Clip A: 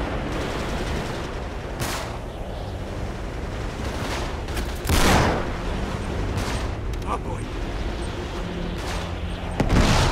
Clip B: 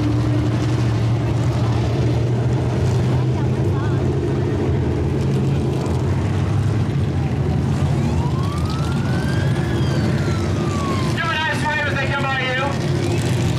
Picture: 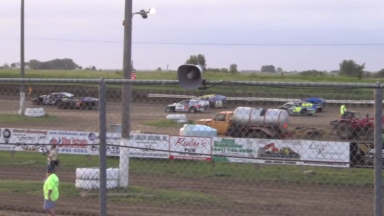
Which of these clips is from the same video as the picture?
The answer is B